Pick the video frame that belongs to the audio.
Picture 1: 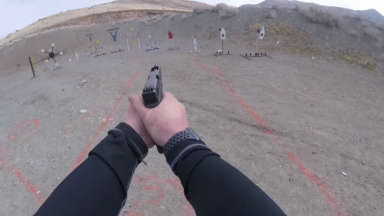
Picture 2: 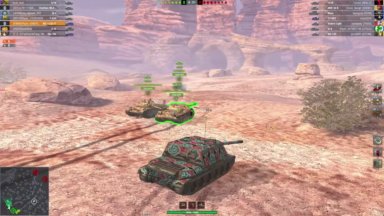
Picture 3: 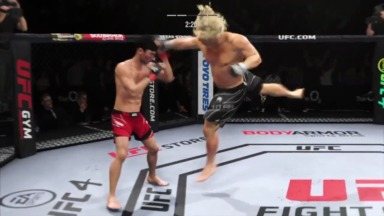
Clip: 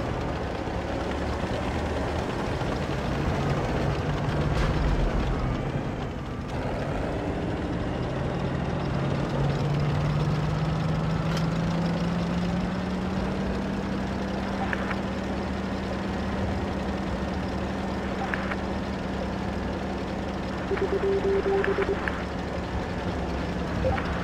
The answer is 2